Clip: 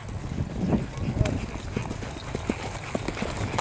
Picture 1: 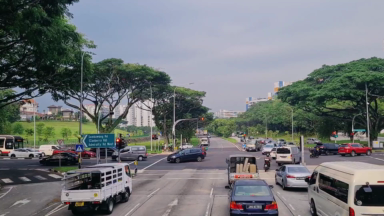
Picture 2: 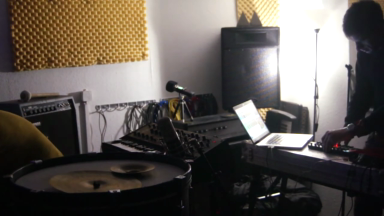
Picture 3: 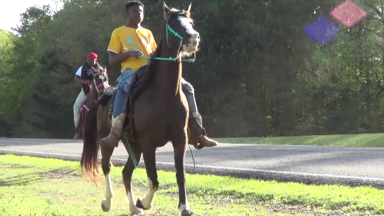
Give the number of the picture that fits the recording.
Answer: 3